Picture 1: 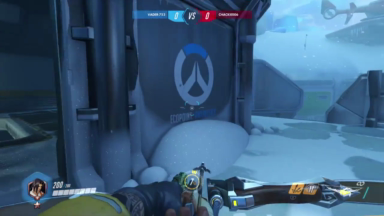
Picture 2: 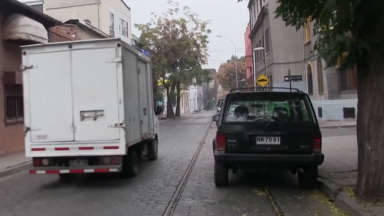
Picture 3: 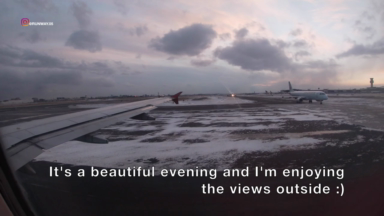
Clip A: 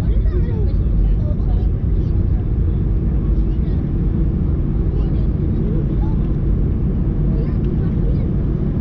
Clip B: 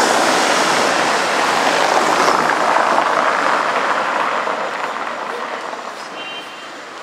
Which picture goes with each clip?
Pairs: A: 3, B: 2